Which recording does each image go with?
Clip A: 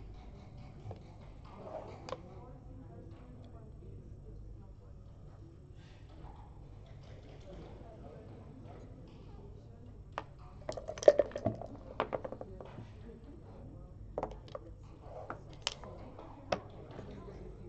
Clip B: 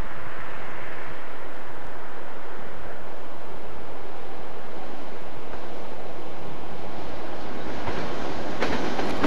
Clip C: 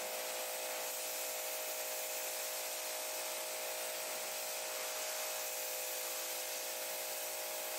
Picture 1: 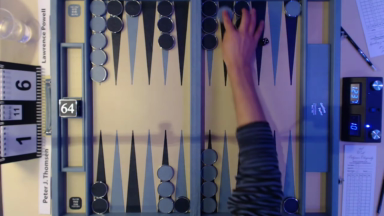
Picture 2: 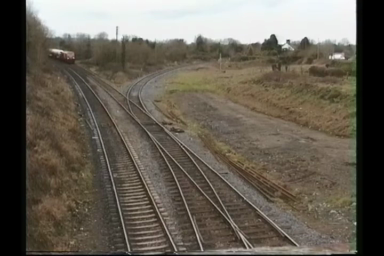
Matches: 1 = A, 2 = B